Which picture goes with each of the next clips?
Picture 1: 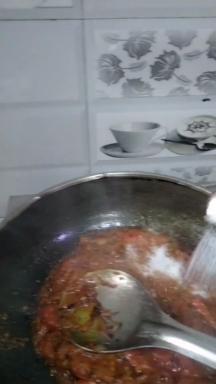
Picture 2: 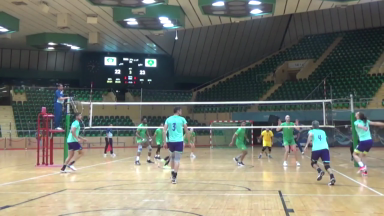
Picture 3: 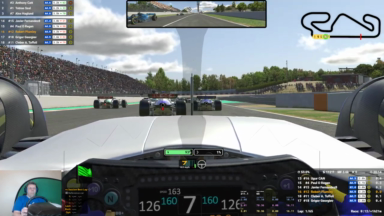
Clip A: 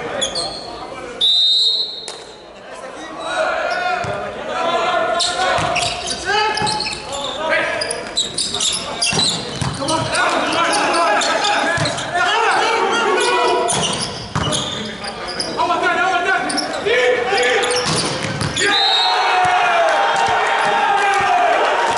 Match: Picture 2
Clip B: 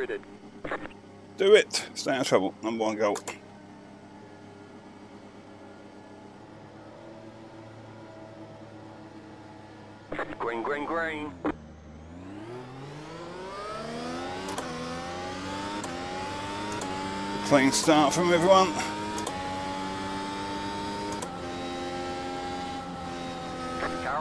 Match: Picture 3